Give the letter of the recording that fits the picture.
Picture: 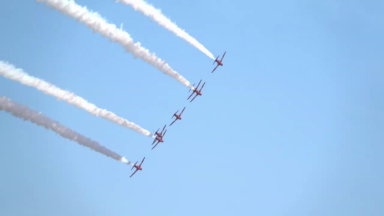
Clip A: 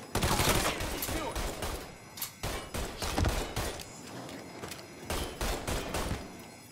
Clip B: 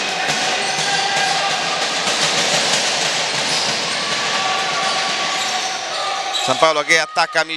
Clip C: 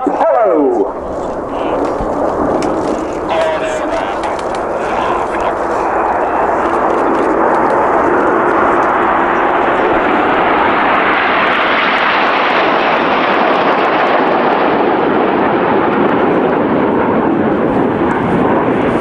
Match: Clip C